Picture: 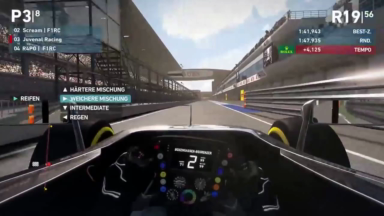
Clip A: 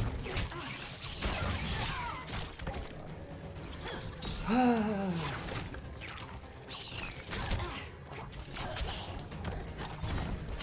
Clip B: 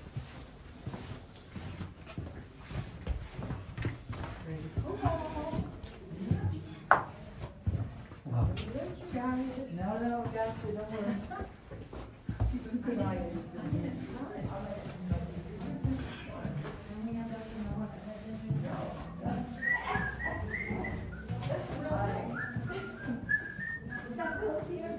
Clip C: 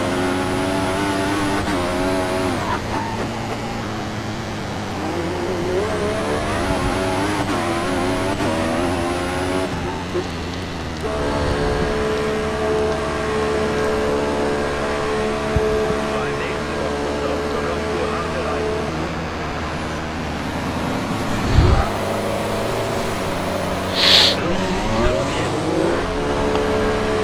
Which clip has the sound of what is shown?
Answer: C